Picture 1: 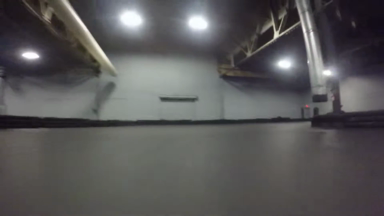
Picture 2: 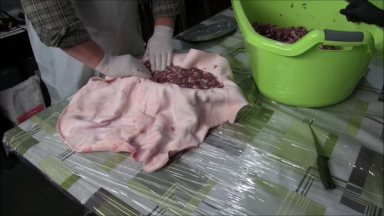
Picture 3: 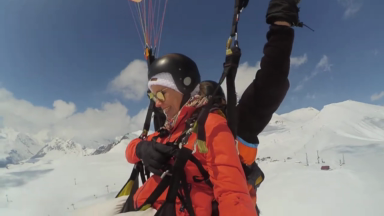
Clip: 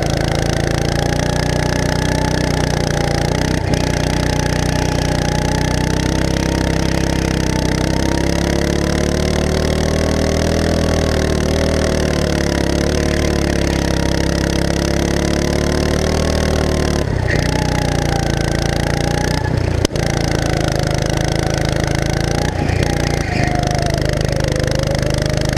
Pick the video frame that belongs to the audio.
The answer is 1